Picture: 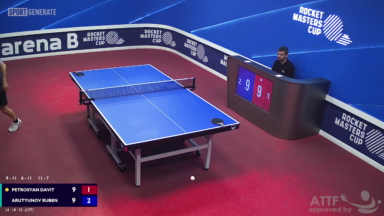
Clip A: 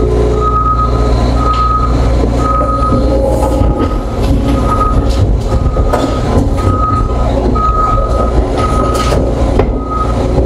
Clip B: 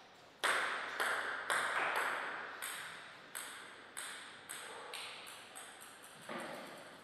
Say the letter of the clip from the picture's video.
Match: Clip B